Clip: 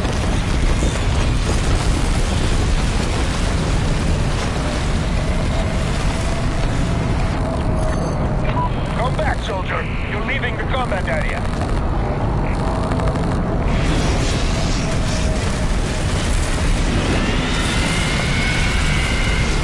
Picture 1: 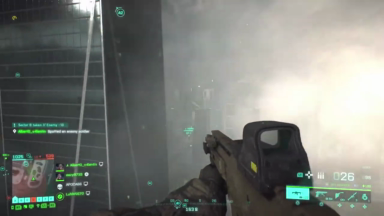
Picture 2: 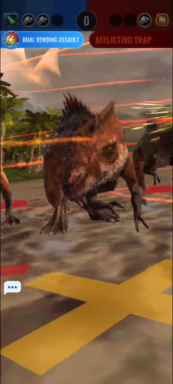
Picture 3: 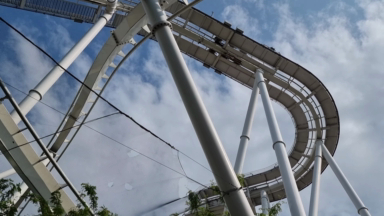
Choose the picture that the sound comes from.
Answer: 1